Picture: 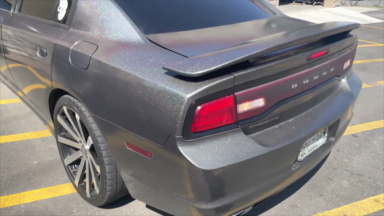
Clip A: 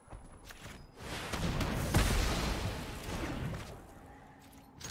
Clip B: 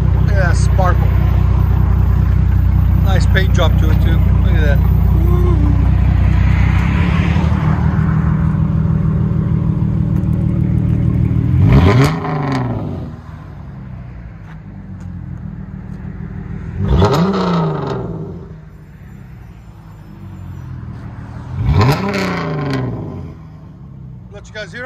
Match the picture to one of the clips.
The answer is B